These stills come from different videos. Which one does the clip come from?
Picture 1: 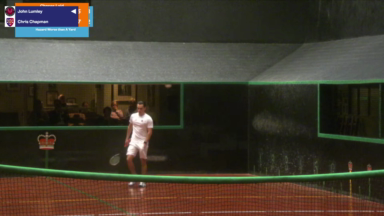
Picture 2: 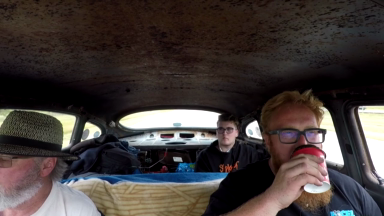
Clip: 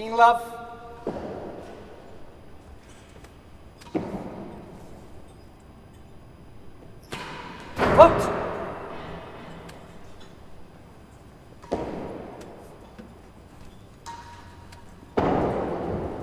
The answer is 1